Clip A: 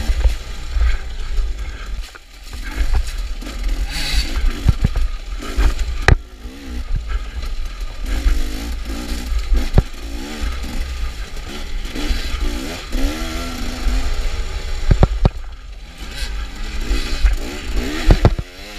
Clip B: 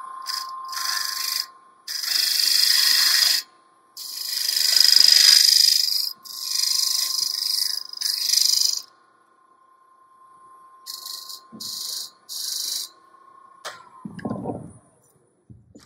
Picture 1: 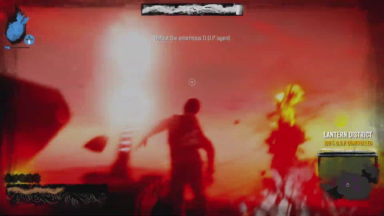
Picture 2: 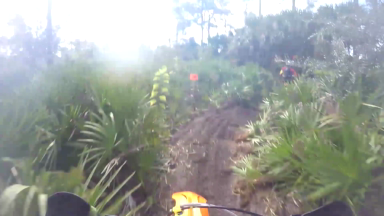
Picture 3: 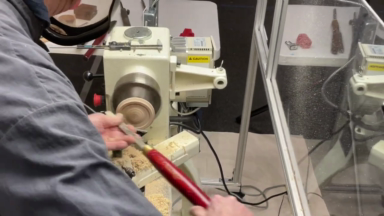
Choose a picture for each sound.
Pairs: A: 2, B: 3